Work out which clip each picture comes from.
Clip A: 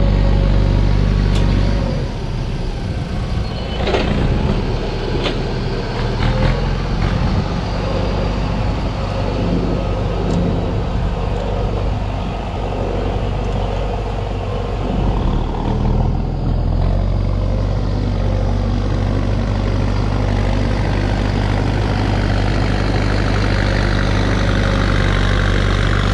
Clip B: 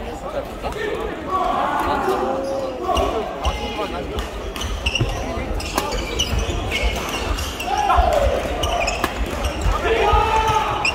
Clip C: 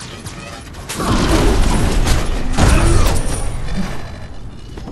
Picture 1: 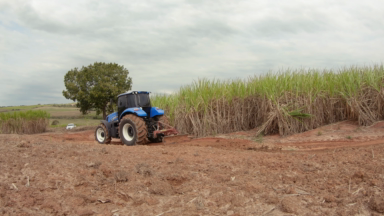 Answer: A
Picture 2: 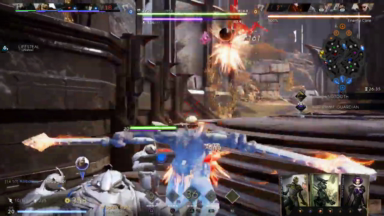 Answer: C